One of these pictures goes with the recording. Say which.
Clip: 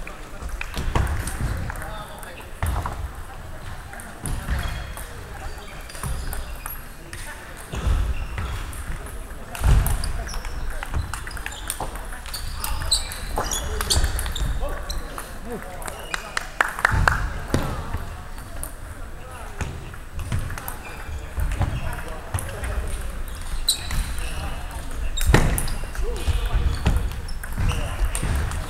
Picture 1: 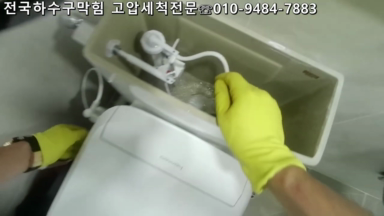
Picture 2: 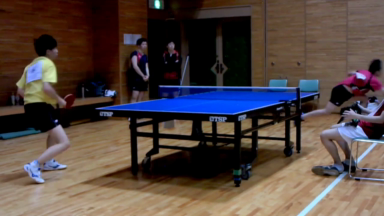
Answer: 2